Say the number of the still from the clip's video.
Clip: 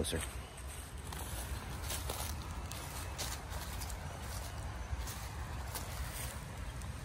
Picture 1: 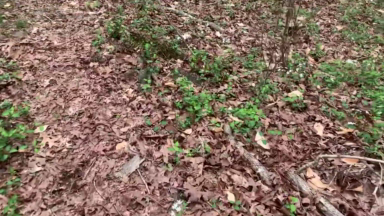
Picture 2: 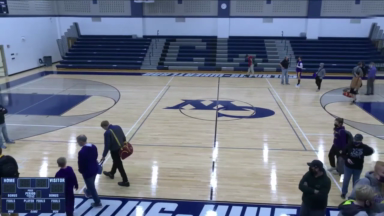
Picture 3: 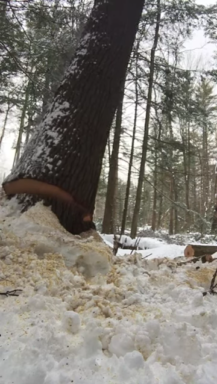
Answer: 1